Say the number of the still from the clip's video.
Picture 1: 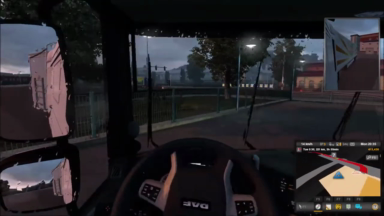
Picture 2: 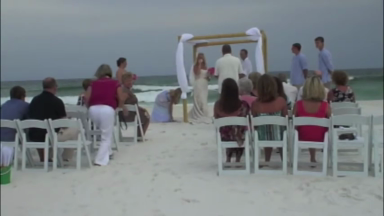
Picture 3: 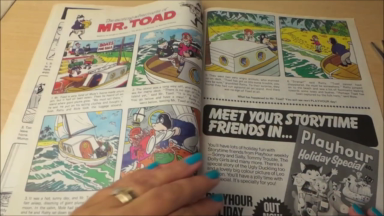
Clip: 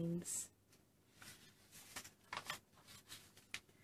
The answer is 3